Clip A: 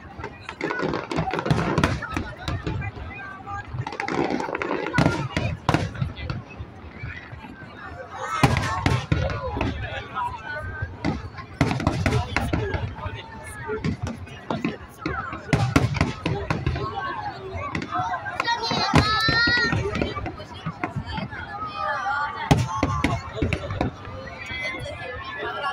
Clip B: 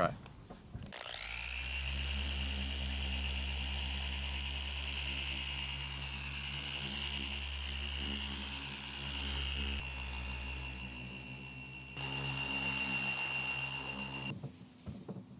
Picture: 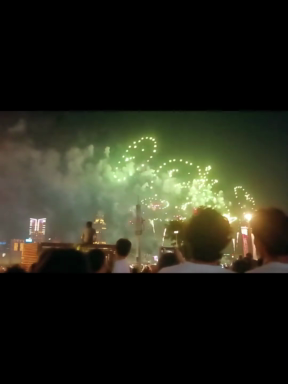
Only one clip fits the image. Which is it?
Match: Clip A